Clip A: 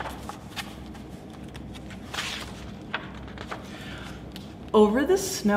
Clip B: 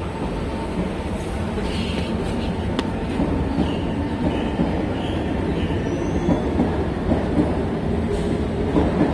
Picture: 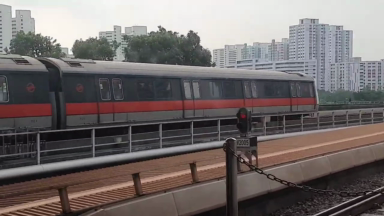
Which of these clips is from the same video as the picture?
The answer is B